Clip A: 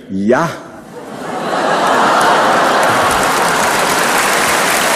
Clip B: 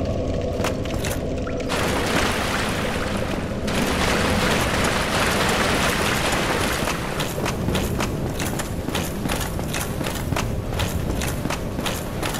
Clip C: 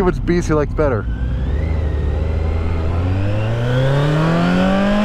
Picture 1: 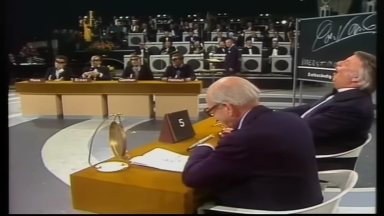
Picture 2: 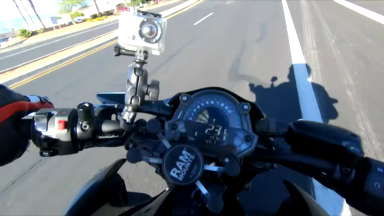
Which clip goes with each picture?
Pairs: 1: A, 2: C